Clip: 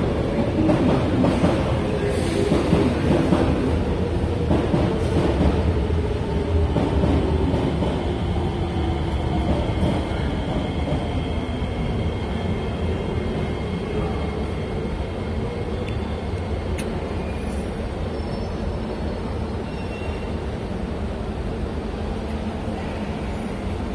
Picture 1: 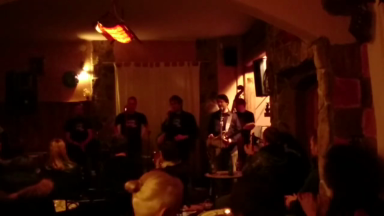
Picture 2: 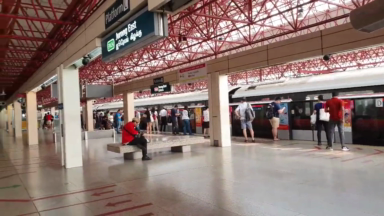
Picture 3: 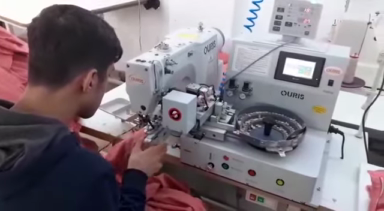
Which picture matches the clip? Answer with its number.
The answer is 2